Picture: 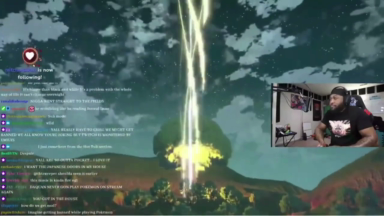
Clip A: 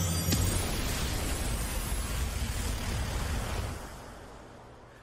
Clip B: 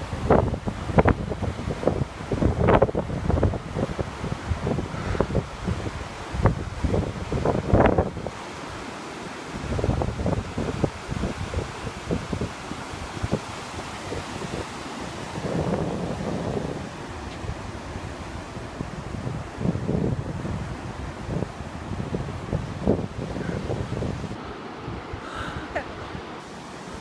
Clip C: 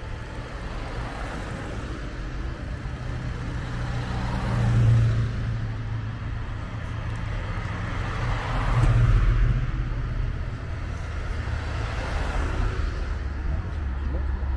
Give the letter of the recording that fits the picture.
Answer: A